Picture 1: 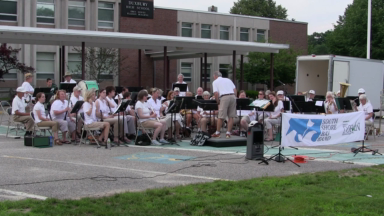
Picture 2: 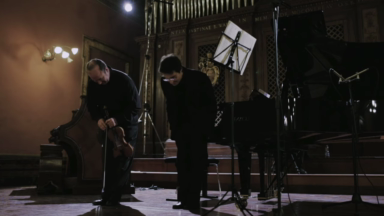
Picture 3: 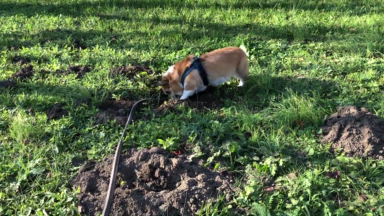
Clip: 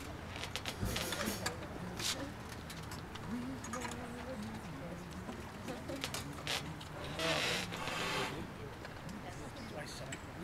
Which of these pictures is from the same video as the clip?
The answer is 1